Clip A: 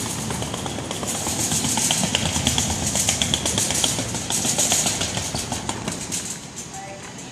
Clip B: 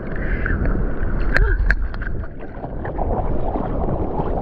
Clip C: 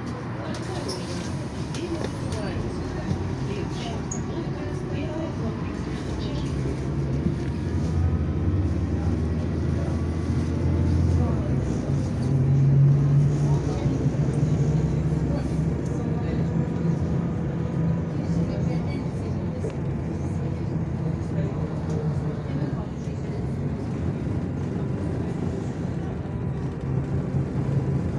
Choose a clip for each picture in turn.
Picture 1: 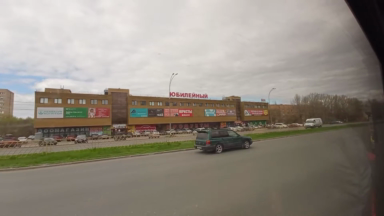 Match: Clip C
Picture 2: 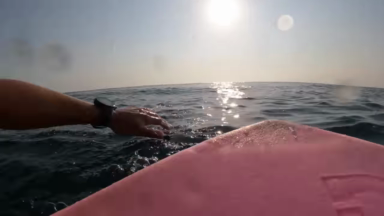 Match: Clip B